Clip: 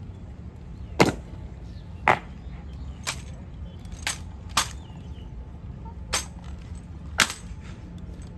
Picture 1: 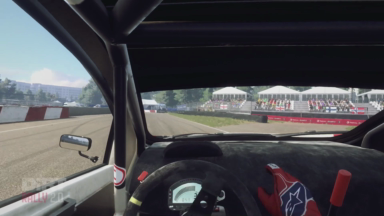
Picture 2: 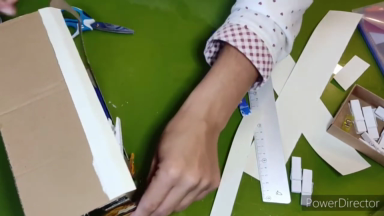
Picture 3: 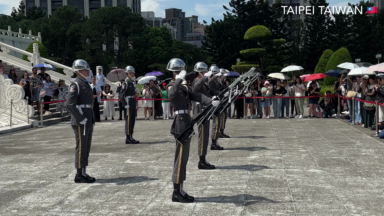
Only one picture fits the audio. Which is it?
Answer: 3